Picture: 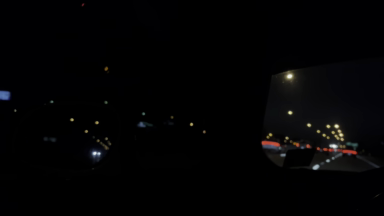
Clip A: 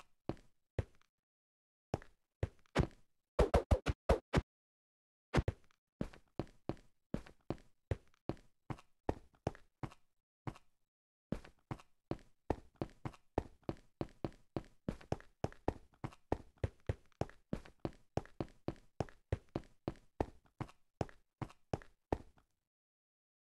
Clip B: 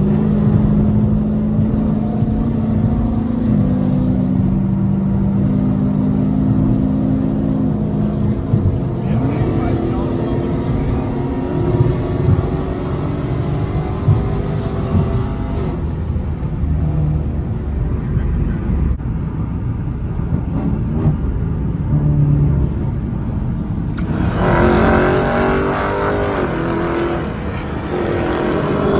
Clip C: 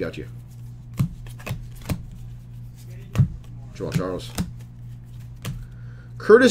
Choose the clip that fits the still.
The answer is B